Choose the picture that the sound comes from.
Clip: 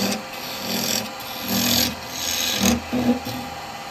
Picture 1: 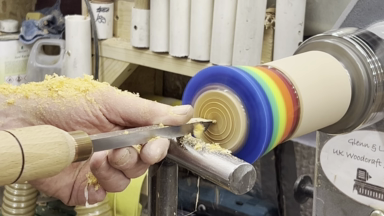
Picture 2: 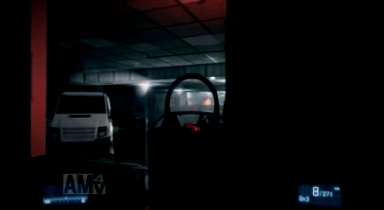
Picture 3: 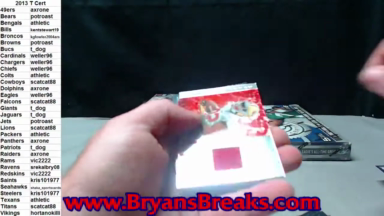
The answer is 1